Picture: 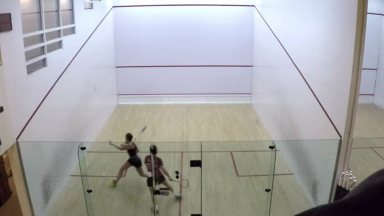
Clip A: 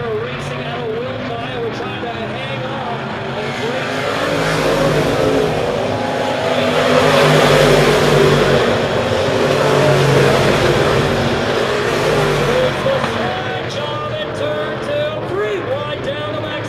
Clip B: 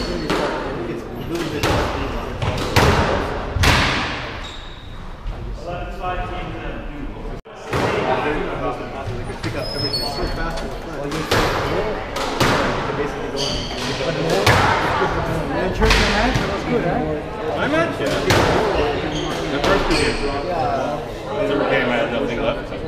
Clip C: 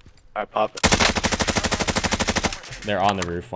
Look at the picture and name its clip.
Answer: B